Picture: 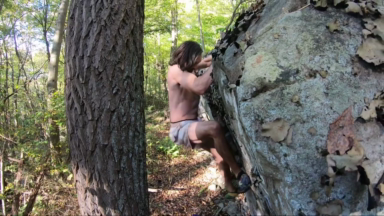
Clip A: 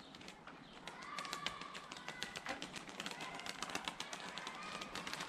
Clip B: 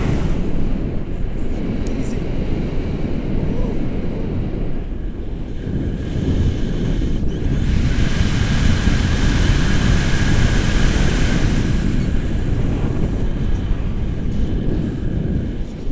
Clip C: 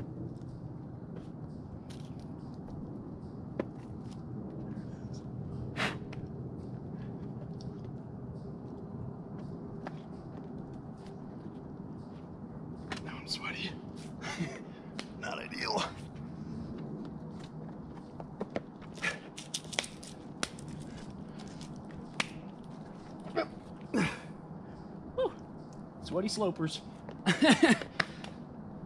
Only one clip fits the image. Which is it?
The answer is C